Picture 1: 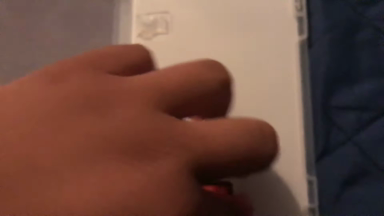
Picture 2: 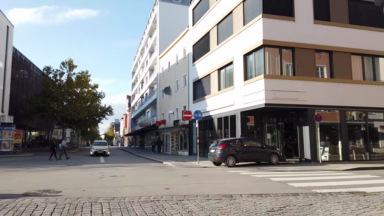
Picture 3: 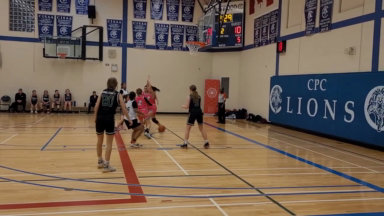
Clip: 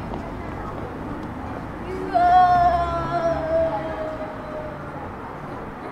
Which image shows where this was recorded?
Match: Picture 2